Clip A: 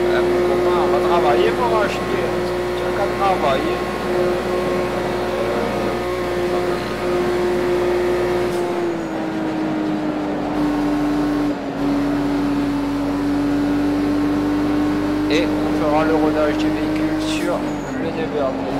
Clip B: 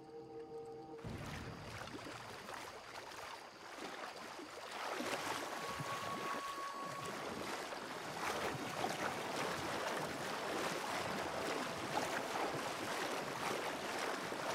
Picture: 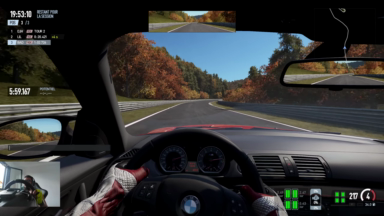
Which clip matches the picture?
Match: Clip A